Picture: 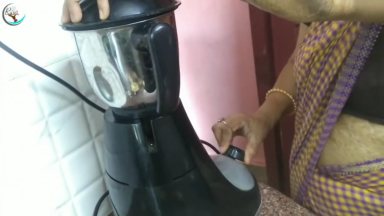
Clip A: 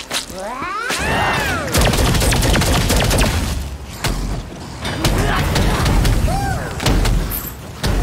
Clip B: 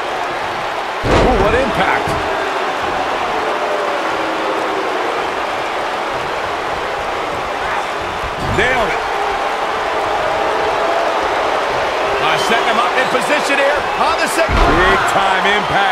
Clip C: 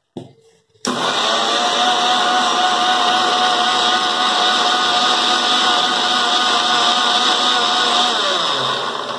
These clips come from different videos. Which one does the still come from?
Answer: C